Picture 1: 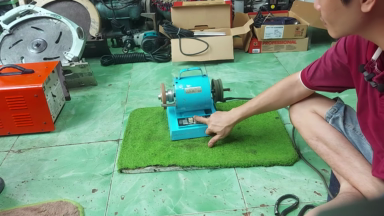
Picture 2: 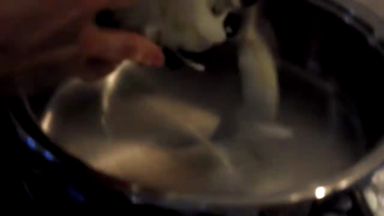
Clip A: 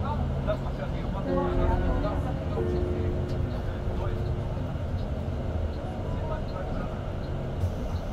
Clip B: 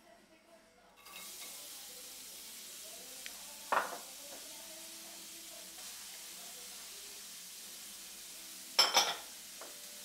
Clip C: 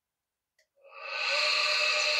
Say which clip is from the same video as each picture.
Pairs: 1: C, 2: B